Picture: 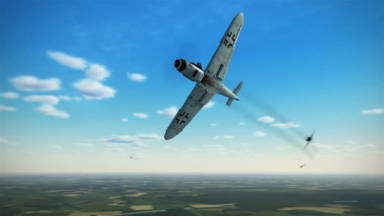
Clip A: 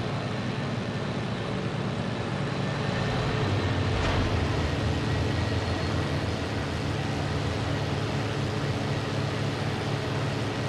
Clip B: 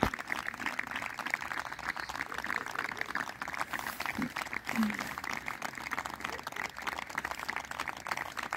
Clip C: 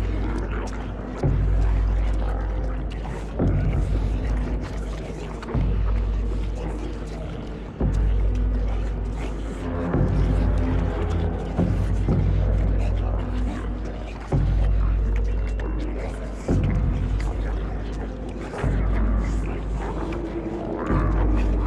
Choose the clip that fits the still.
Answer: A